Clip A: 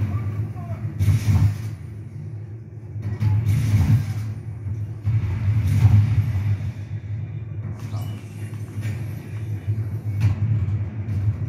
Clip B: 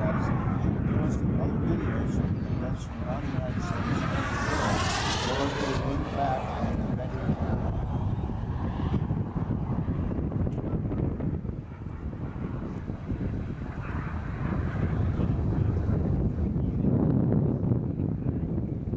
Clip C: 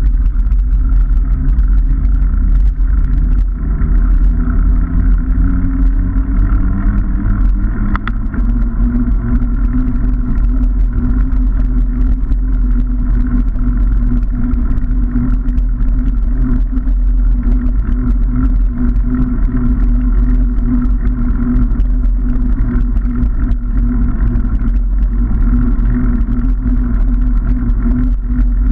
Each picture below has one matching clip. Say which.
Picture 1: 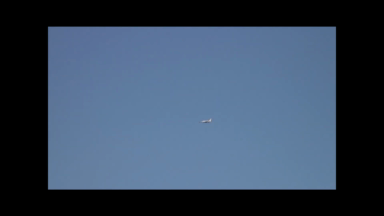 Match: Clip B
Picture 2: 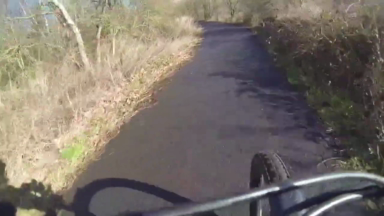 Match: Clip C